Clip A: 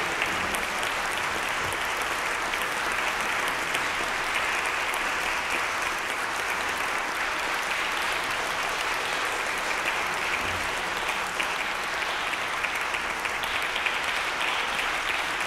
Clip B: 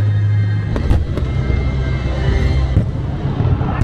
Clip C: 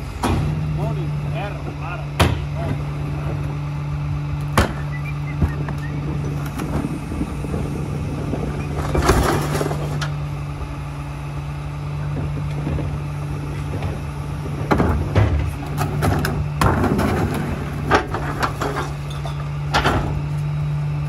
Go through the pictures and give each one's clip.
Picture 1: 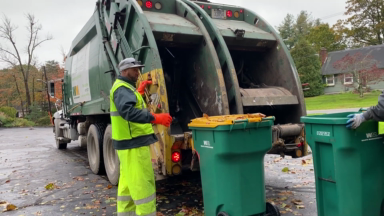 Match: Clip C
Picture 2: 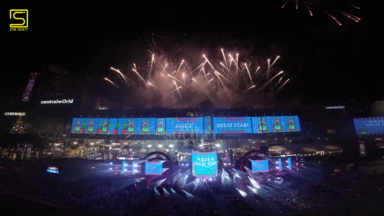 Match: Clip B